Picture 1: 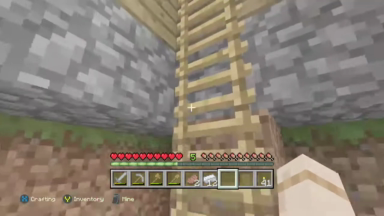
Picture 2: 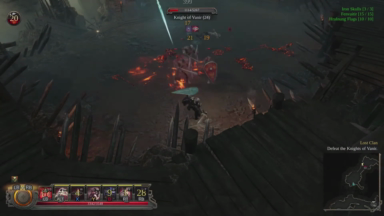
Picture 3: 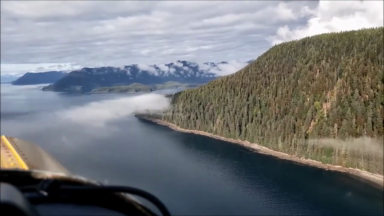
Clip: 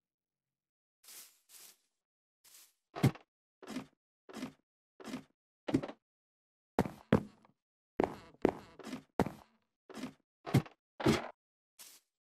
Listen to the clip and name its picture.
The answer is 1